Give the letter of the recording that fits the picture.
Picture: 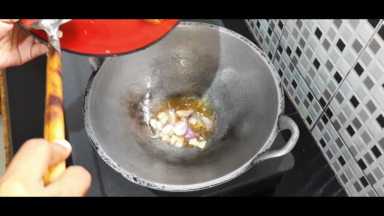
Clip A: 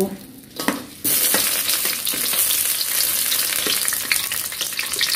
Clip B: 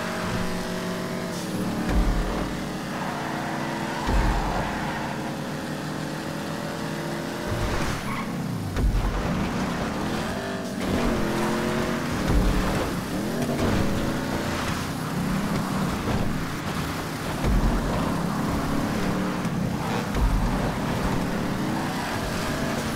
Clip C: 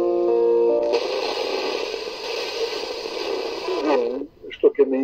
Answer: A